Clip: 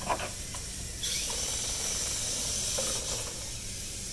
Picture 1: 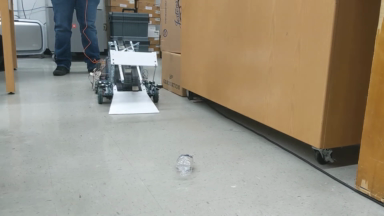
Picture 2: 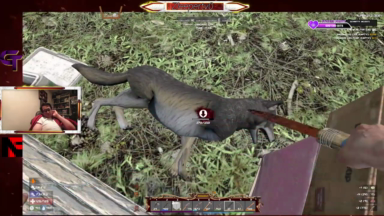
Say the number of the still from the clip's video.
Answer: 1